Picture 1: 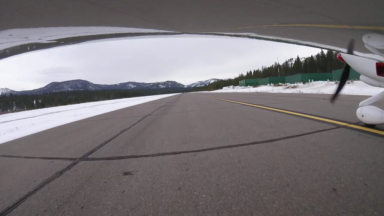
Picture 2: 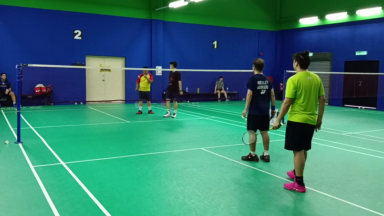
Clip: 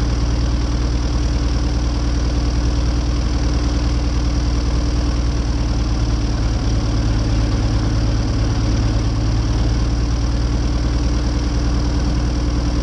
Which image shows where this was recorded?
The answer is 1